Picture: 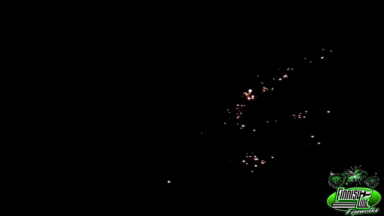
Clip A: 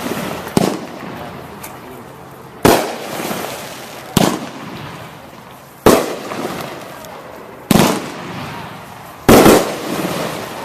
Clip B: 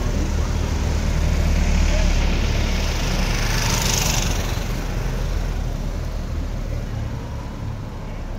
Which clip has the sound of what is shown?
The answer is A